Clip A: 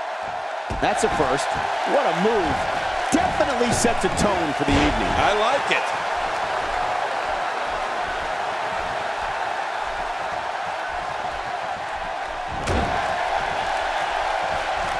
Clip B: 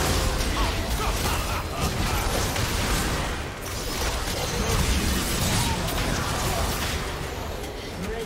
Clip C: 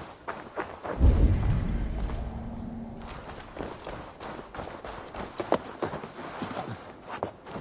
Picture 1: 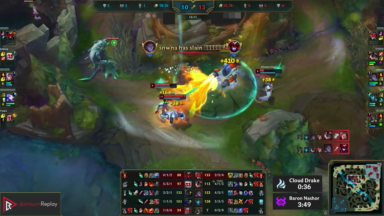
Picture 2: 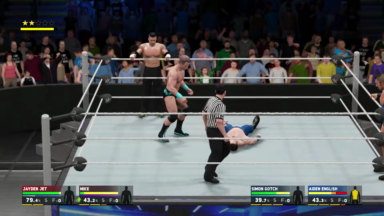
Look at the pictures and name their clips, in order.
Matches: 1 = B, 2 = A